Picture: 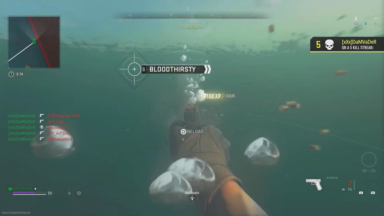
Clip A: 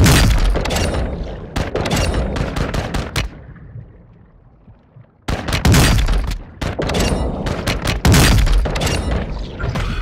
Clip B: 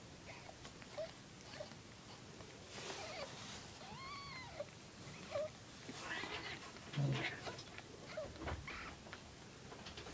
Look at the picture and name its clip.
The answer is A